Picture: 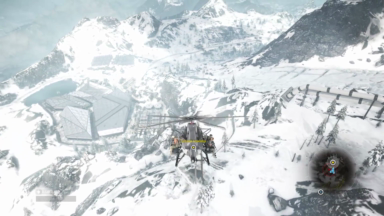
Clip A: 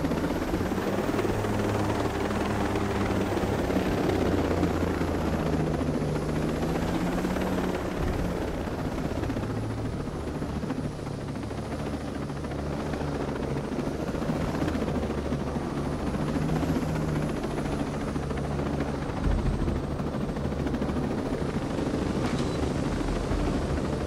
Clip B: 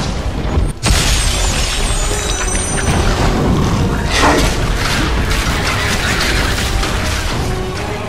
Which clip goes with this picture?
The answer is A